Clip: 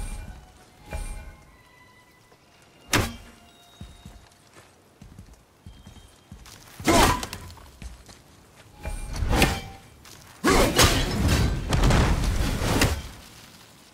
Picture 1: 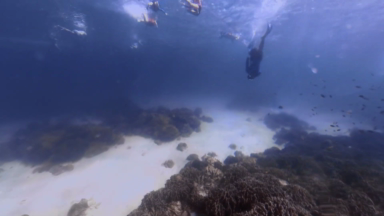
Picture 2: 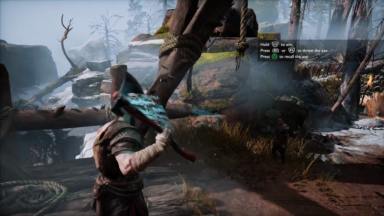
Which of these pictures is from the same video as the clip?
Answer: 2